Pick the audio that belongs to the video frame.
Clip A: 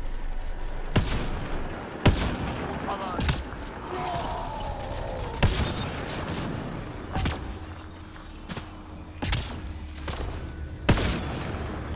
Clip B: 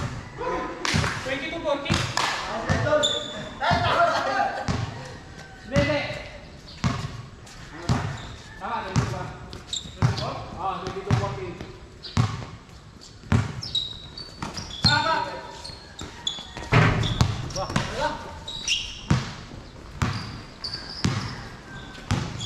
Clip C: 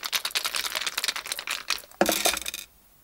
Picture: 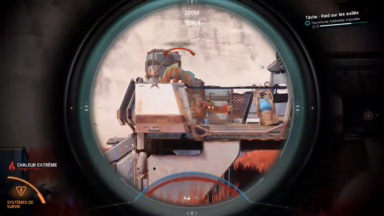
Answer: A